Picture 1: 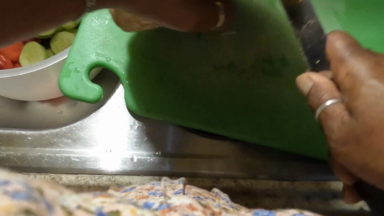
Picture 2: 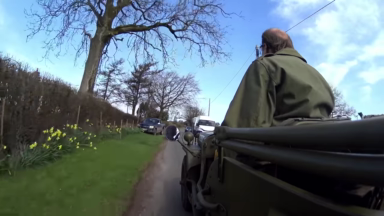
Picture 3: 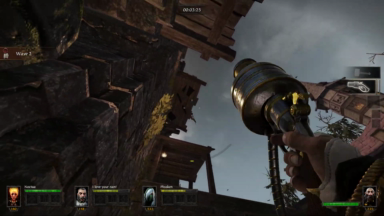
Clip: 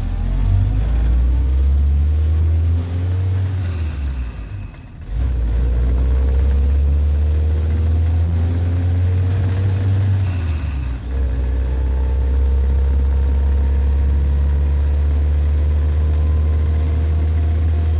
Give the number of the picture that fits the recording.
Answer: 2